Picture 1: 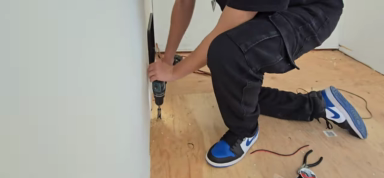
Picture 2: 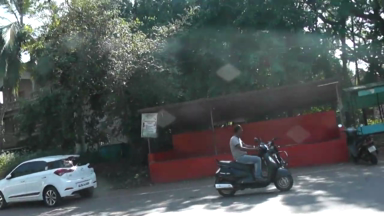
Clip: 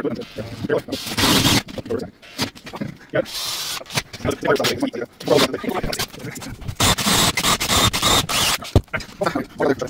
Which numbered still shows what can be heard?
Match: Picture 1